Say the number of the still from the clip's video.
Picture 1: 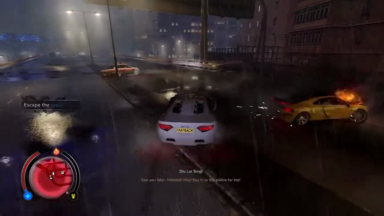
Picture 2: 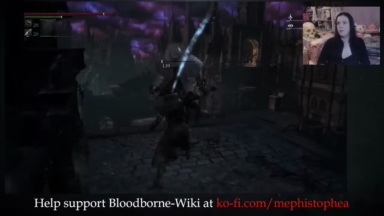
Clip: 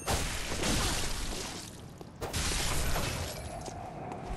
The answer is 2